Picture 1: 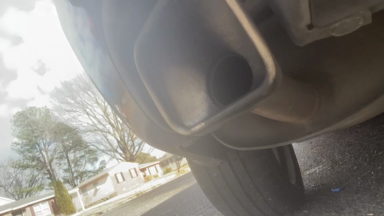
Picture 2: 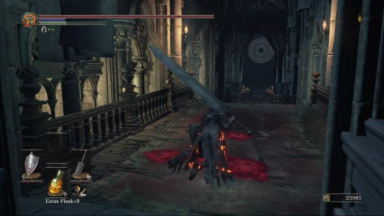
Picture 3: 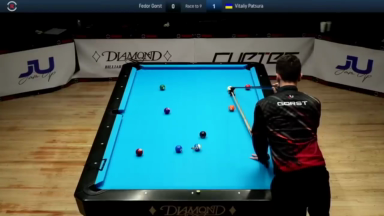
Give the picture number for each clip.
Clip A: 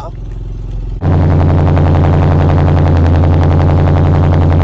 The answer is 1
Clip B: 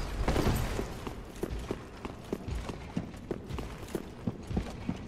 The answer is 2